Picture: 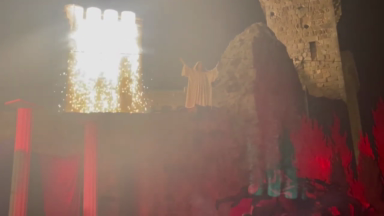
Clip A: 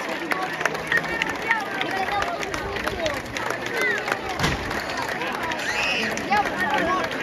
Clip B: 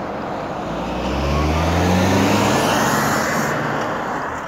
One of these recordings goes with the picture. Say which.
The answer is A